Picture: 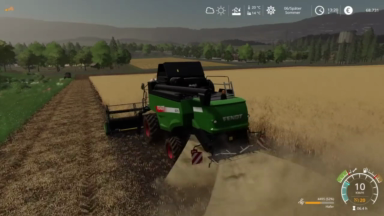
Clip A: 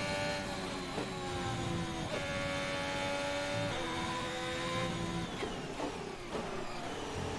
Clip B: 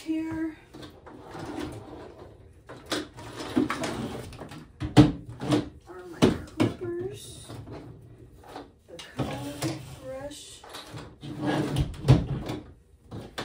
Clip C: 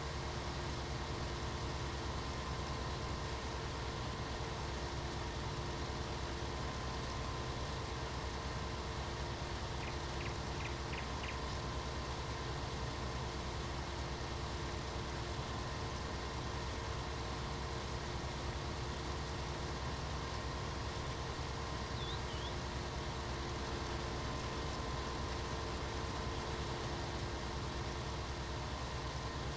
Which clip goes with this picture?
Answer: C